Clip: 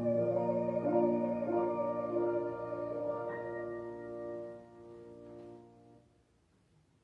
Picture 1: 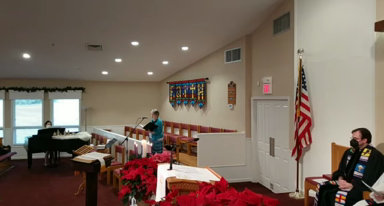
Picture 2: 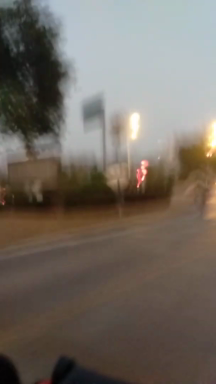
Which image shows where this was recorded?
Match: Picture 1